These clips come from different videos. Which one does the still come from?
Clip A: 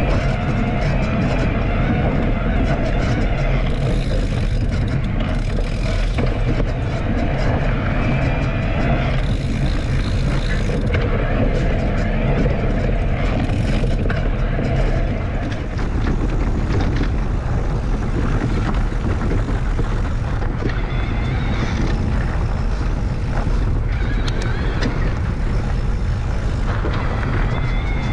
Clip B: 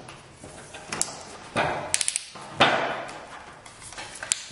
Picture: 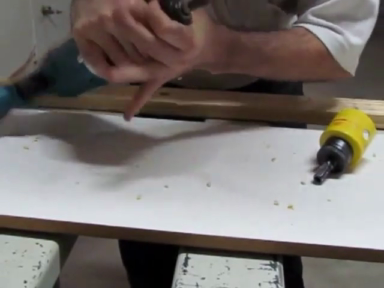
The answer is B